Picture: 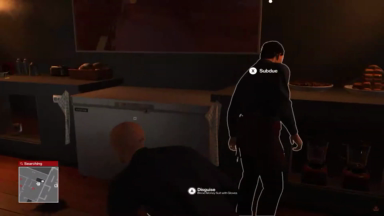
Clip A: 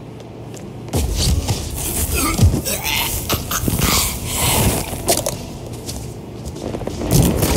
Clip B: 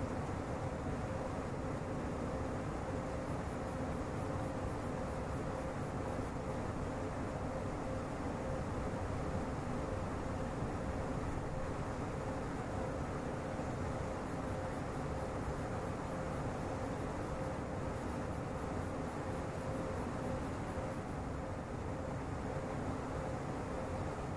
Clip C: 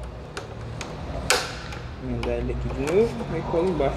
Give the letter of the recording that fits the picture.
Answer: A